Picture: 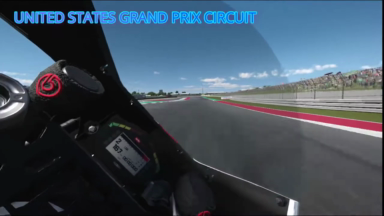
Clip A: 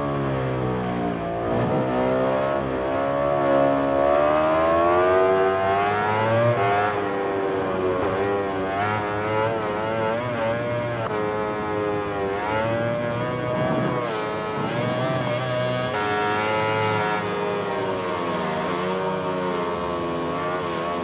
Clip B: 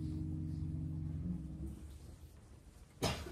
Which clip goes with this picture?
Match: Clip A